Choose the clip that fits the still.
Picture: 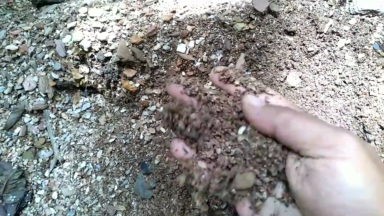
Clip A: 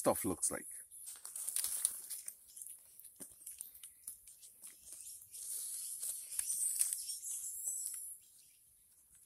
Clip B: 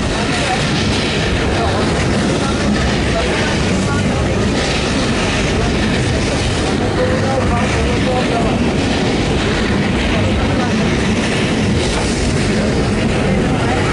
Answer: A